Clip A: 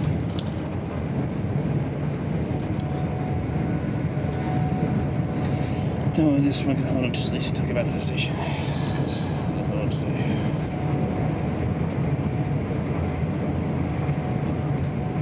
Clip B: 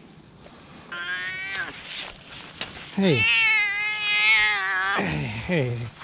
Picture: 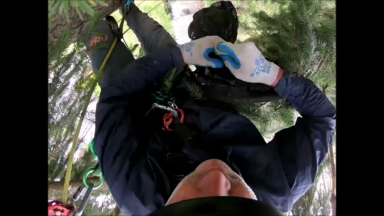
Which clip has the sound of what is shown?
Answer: B